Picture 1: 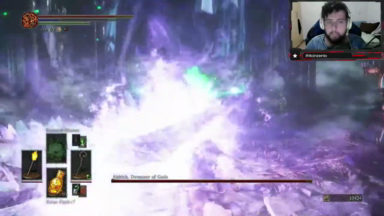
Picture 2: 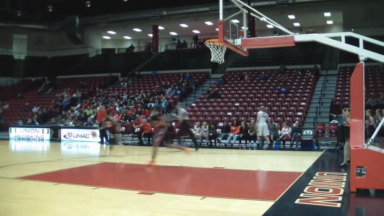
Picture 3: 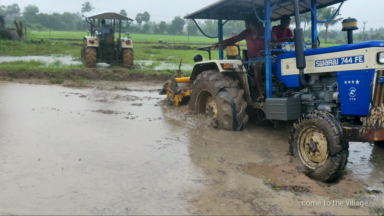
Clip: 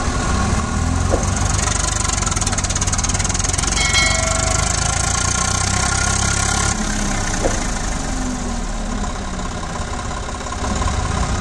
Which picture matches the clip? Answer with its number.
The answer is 3